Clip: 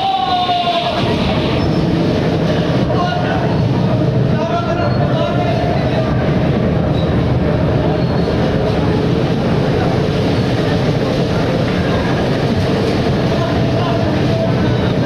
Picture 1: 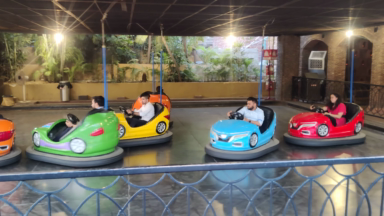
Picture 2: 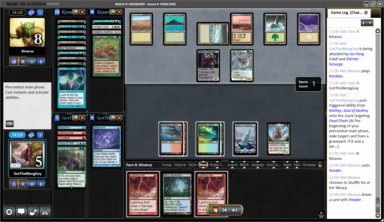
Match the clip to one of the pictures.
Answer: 1